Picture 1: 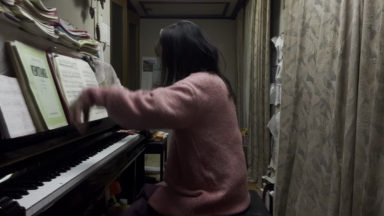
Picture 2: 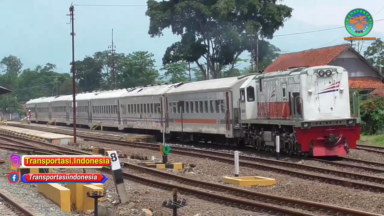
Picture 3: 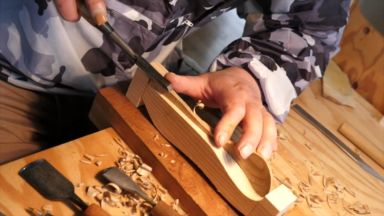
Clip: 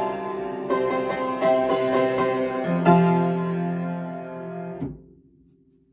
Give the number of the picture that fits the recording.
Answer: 1